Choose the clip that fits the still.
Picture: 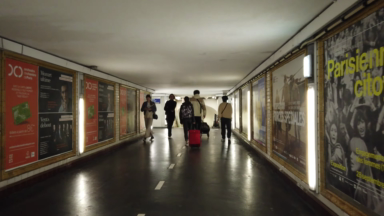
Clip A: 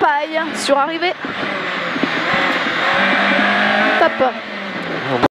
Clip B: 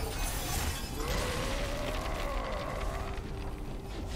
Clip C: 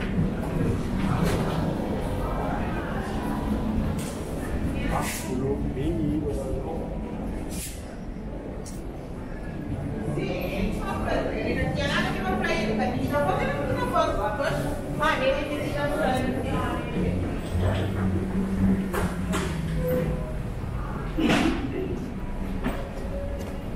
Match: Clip C